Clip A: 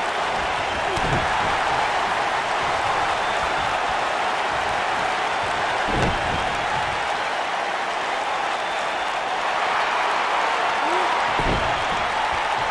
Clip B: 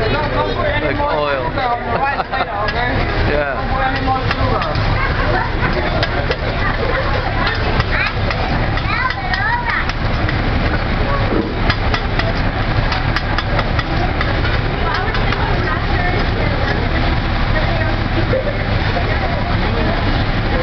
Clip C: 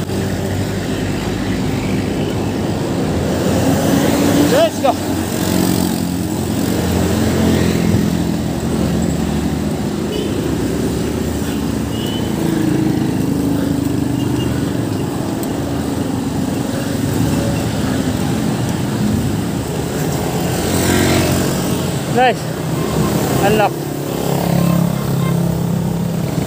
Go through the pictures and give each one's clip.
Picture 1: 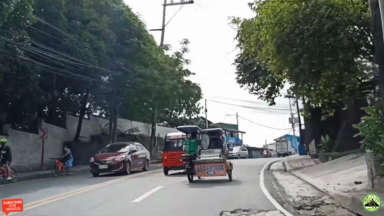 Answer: C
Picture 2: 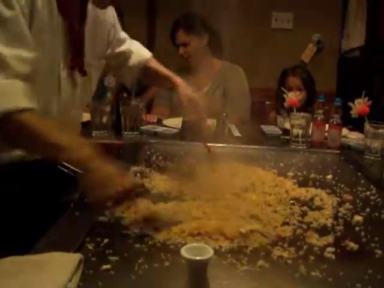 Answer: B